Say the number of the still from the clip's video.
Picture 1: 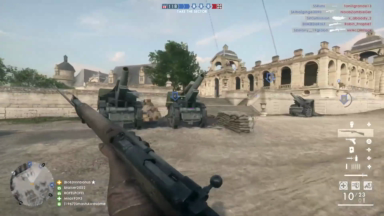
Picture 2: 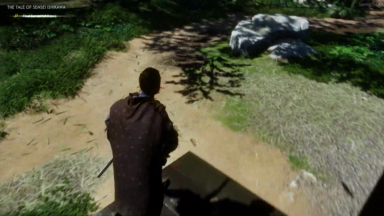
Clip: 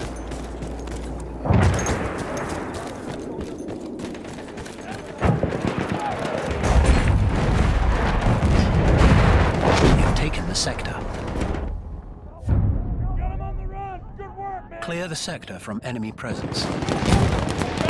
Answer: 1